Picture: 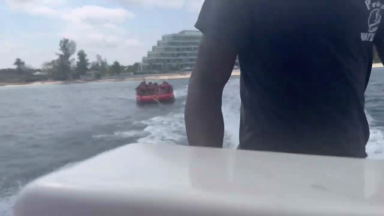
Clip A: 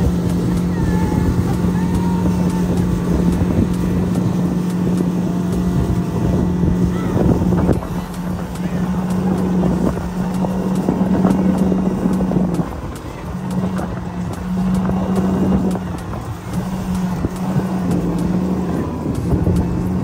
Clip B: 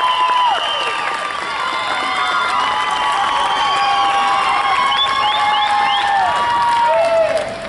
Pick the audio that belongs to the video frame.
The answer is A